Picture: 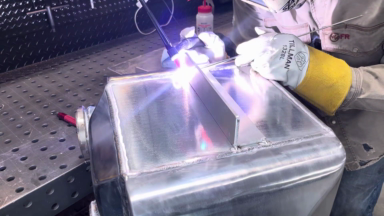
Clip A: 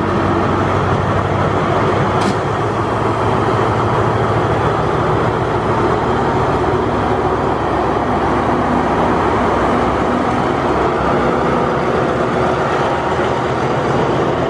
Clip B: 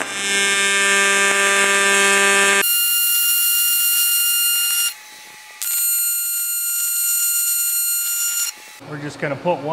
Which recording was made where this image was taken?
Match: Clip B